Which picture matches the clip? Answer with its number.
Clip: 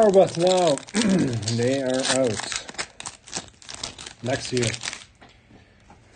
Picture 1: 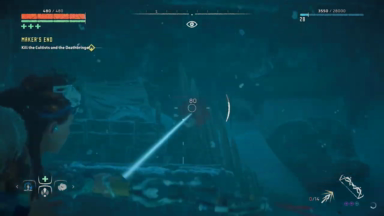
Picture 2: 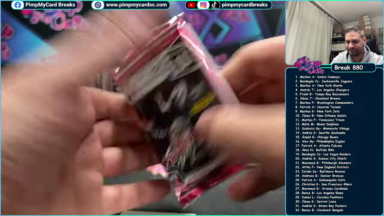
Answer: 2